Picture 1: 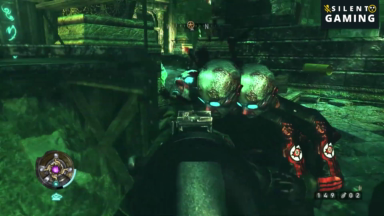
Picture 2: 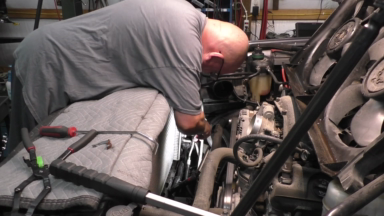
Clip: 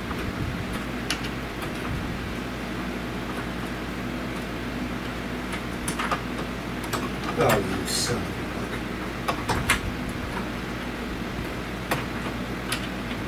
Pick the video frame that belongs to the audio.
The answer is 2